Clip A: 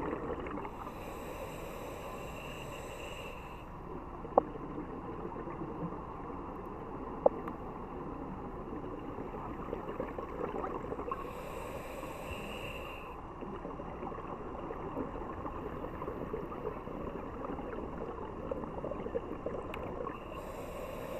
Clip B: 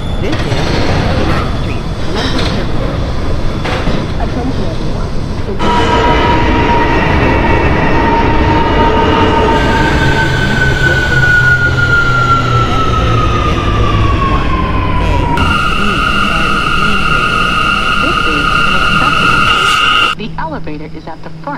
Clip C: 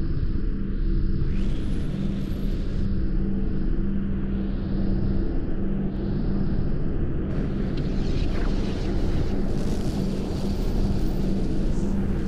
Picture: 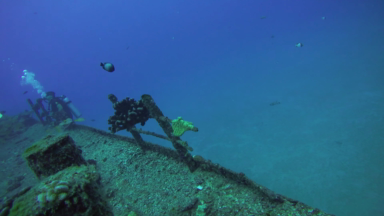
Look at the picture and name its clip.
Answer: A